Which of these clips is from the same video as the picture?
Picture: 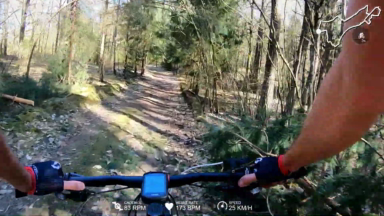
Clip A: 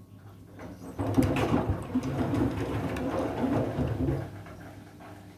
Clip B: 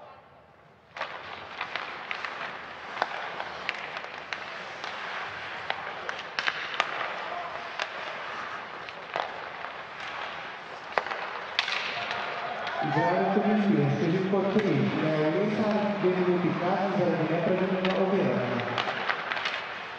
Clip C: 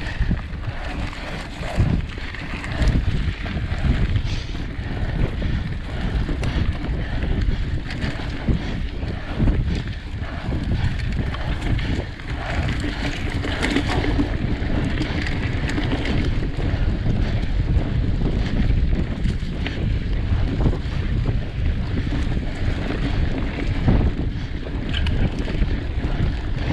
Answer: C